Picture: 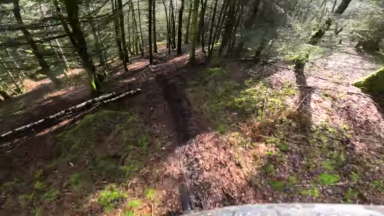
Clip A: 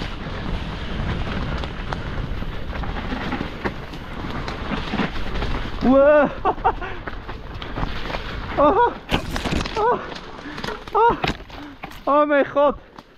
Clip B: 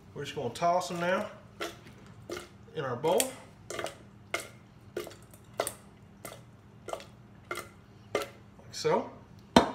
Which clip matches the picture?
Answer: A